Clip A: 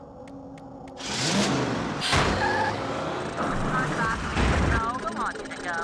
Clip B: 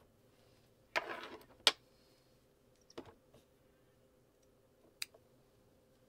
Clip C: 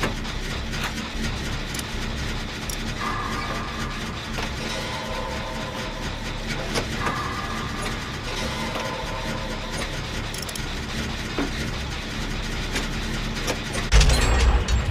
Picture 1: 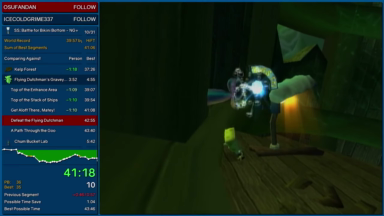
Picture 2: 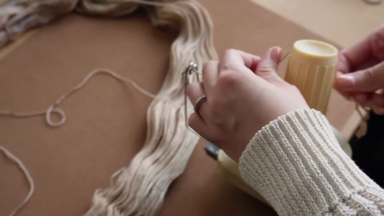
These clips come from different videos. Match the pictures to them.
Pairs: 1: A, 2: B